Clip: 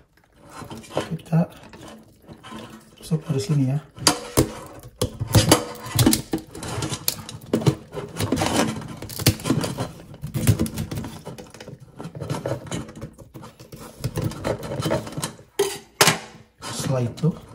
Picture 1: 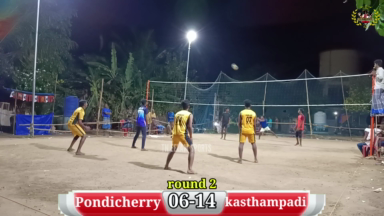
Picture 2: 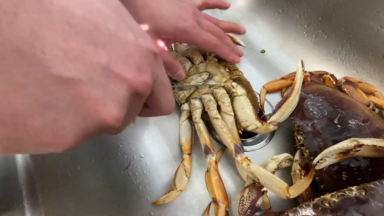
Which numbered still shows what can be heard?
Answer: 2